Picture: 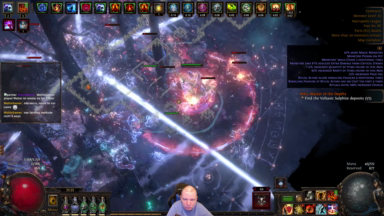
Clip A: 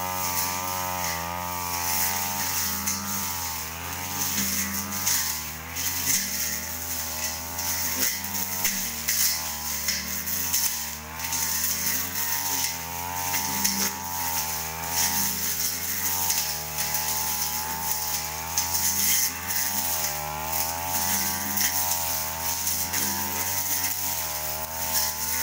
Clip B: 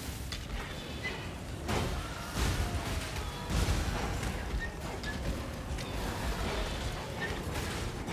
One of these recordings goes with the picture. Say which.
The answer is B